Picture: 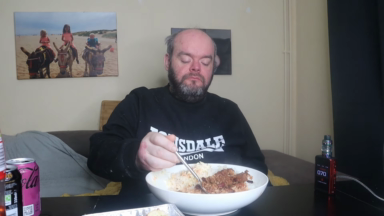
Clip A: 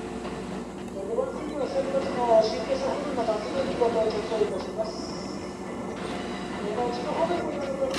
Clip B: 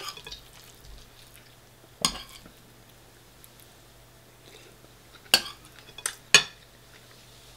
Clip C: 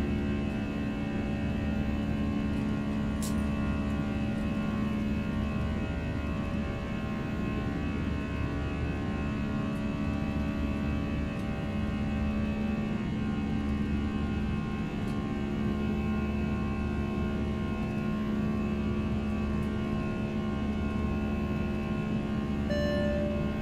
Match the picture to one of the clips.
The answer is B